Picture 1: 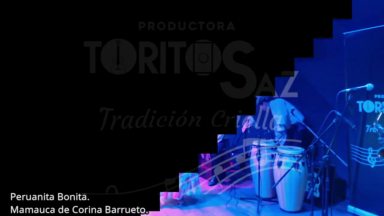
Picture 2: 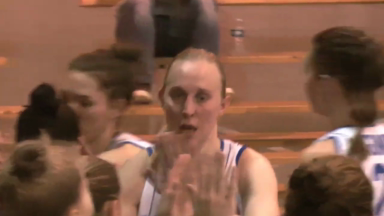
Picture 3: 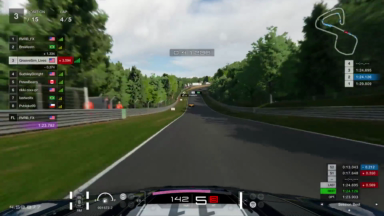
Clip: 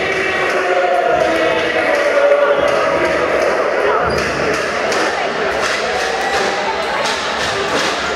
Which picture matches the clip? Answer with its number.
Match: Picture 2